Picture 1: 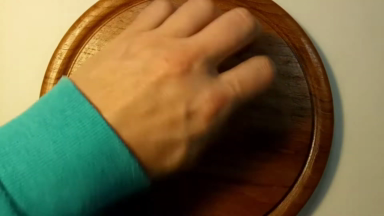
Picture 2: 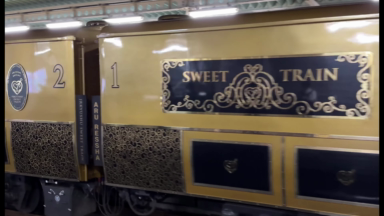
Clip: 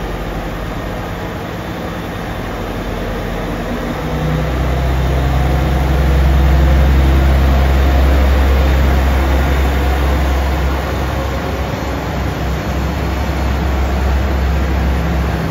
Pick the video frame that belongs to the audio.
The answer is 2